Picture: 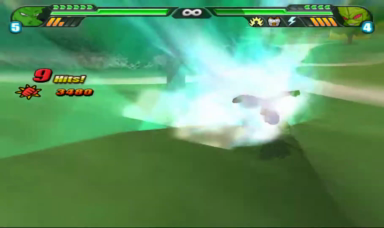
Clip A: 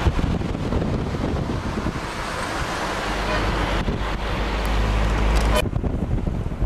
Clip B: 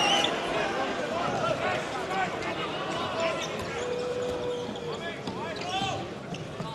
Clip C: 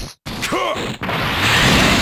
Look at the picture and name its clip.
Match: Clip C